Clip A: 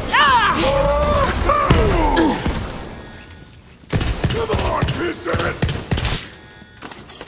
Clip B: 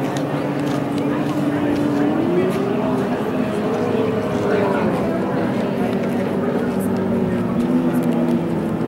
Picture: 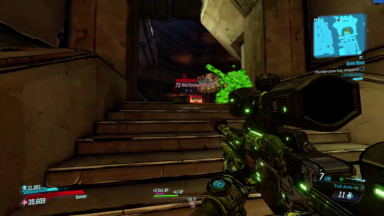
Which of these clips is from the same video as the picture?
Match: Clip A